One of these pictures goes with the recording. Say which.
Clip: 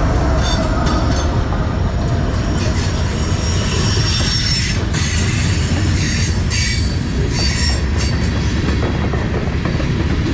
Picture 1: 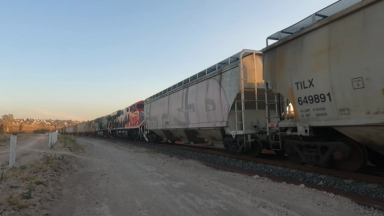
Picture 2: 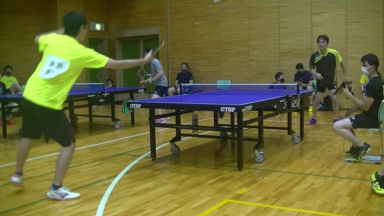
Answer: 1